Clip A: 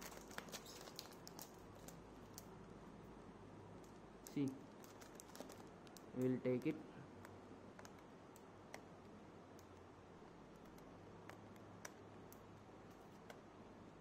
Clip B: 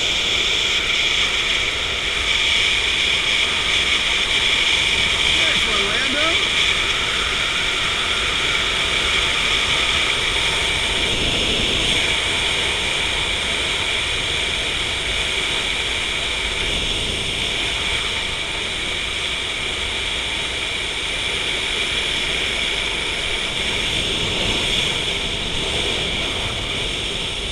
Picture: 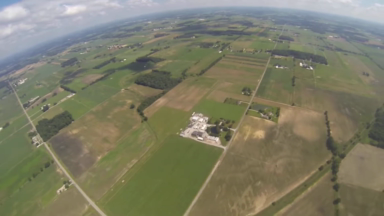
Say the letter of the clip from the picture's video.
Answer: B